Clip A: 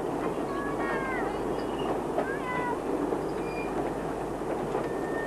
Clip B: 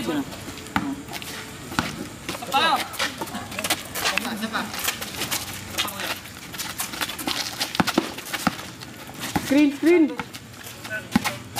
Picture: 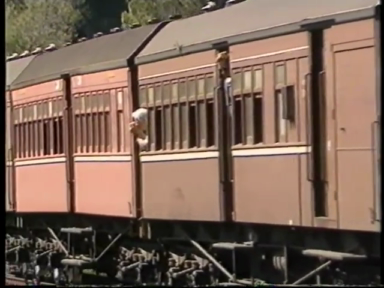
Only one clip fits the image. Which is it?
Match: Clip A